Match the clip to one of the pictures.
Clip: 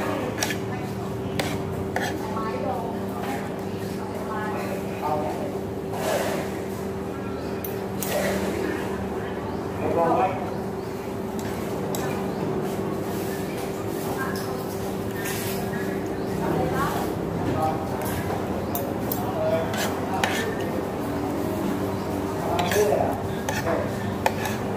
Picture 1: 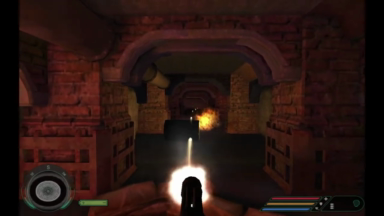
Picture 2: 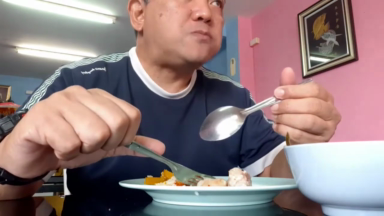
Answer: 2